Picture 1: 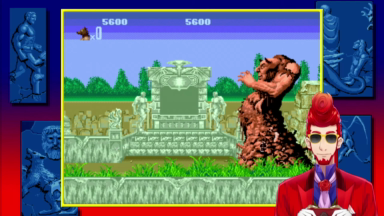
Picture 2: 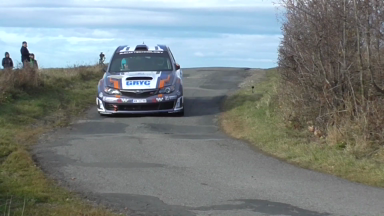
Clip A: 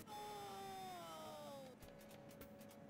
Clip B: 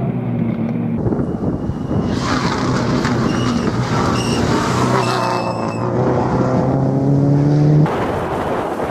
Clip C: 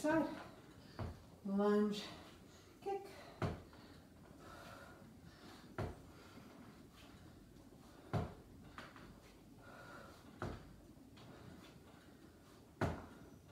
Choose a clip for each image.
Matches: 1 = A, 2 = B